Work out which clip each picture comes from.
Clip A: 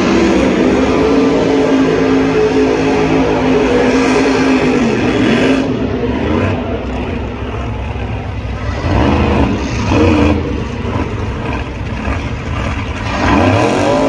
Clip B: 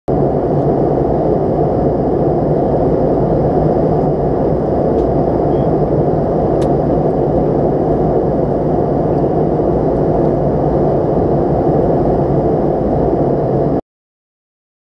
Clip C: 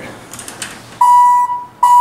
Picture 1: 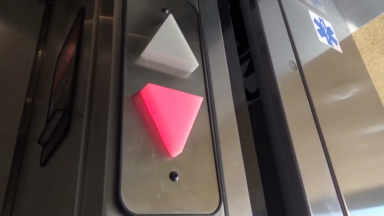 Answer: C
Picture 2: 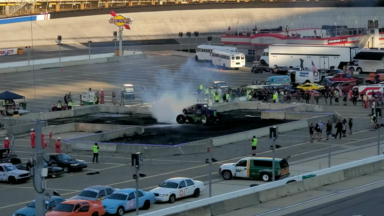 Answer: A